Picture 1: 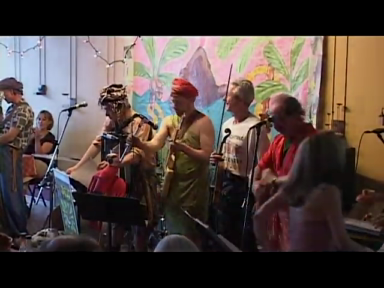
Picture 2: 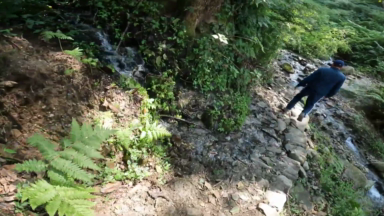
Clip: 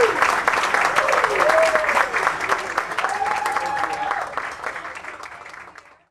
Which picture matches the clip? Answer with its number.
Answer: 1